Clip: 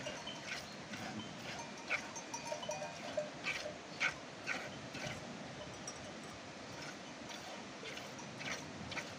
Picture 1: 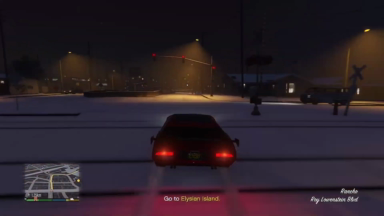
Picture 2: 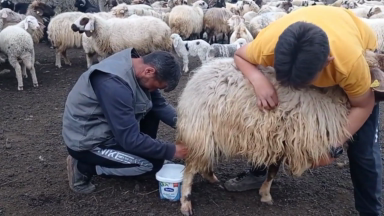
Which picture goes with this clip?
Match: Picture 2